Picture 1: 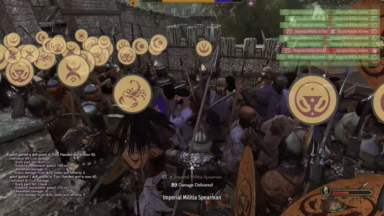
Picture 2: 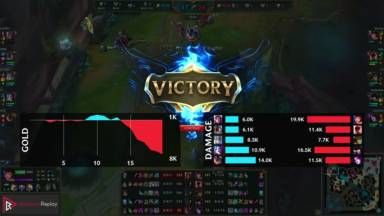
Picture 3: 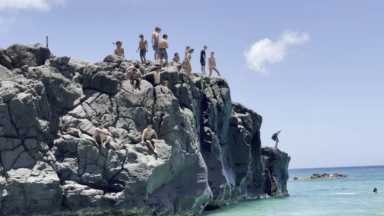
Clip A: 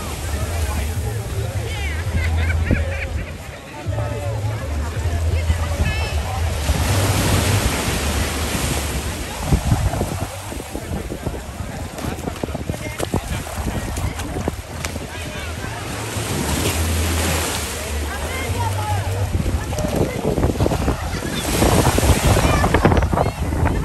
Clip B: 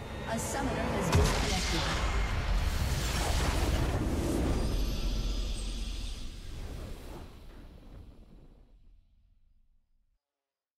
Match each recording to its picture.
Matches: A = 3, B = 2